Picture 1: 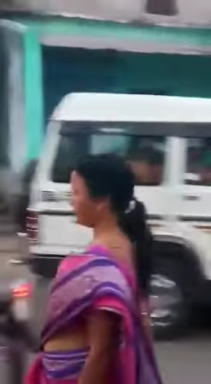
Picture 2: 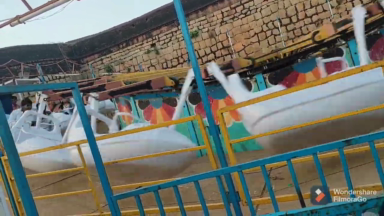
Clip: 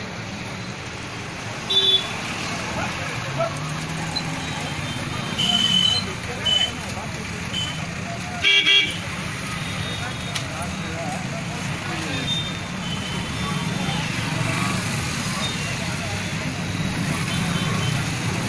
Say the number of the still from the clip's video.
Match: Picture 1